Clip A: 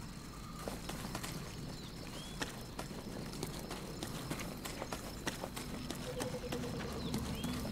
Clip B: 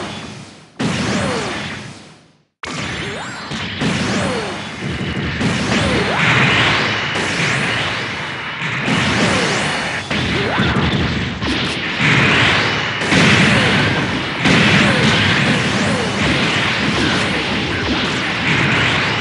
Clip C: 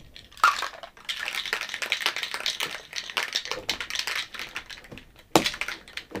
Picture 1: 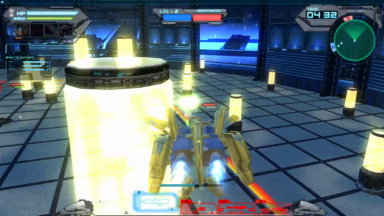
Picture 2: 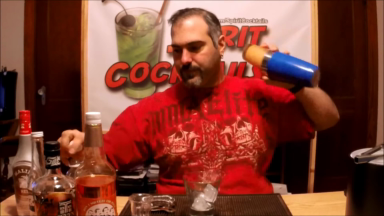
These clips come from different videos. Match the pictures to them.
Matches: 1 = B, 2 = C